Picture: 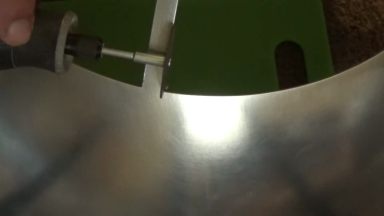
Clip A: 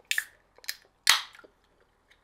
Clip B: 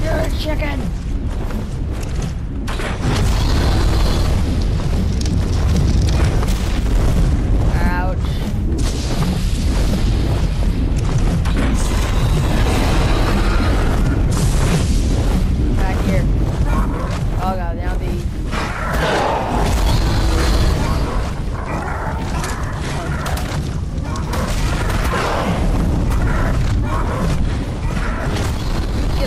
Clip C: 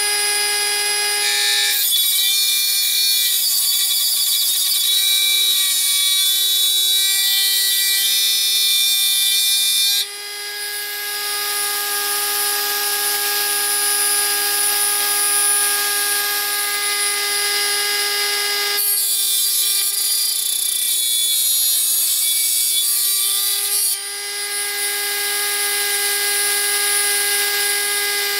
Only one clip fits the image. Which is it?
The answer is C